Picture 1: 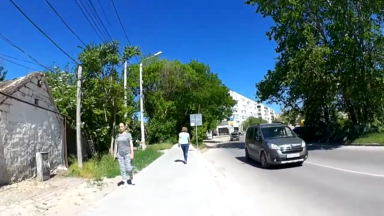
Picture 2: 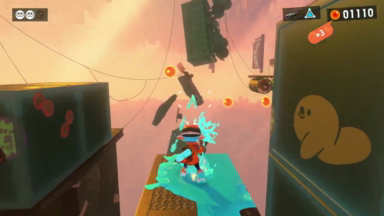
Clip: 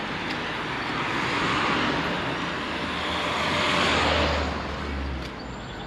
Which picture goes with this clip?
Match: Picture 1